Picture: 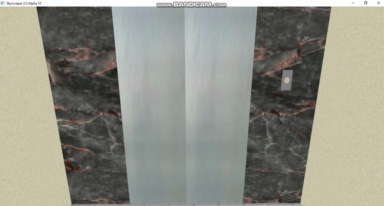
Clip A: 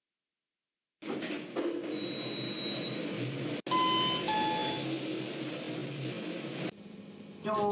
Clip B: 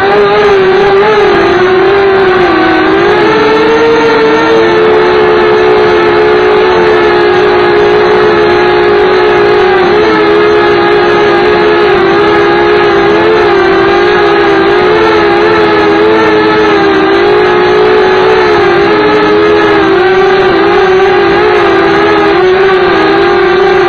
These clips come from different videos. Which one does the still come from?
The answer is A